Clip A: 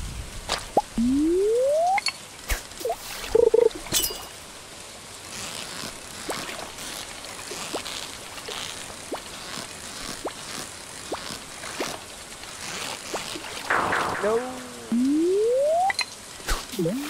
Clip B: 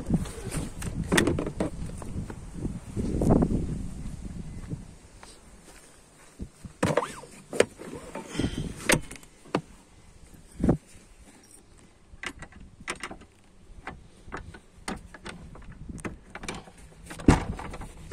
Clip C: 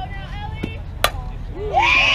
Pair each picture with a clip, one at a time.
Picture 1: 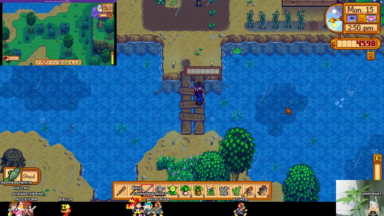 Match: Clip A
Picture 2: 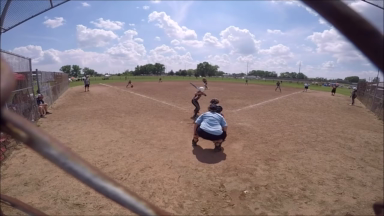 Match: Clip C